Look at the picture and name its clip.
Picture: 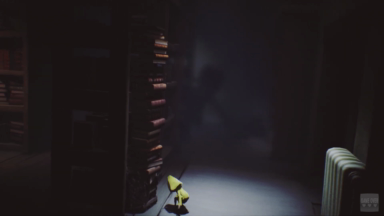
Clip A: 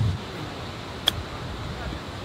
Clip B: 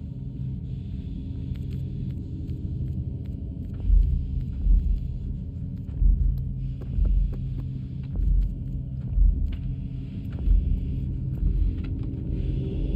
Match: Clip B